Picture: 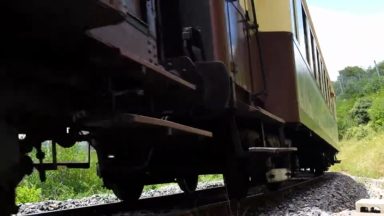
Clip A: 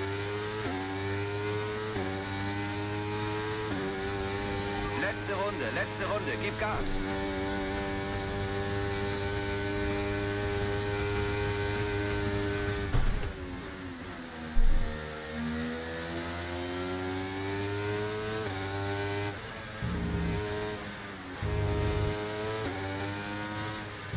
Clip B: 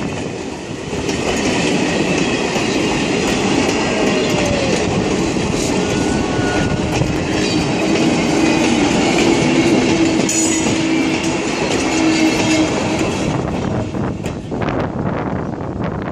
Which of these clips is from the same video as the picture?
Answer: B